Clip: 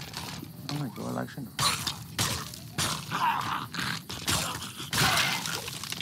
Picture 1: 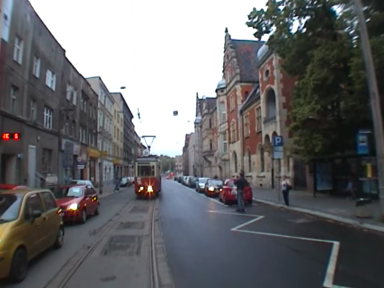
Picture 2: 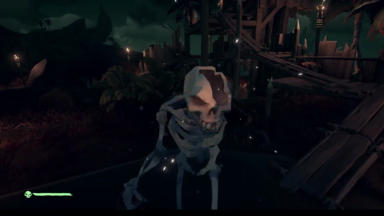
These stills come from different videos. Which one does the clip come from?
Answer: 2